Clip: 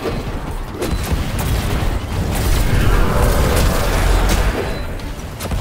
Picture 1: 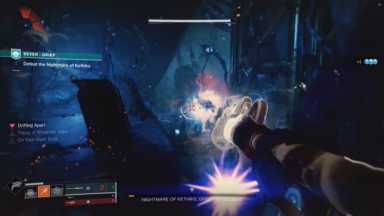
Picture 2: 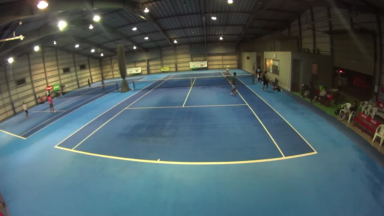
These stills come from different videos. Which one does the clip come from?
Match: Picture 1